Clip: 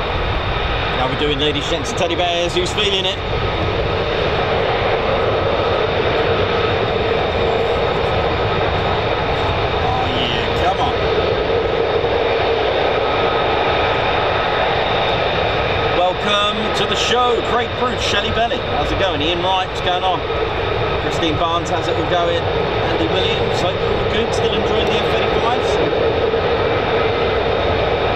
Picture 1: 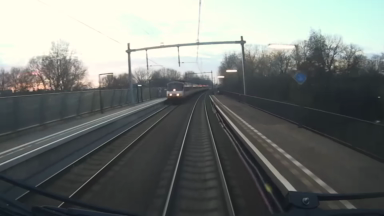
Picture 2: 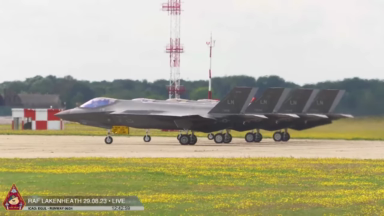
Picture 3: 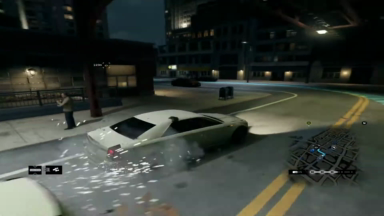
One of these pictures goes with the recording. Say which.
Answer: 2